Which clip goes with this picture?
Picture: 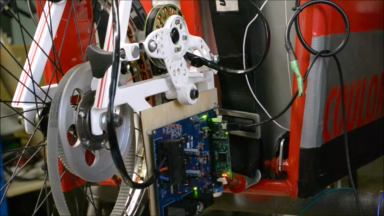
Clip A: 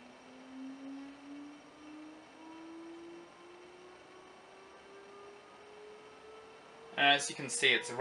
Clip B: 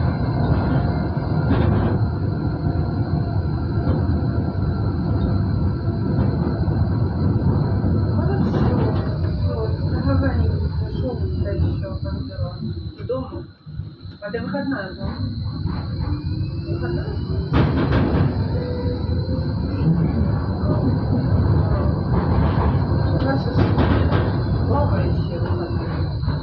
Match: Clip A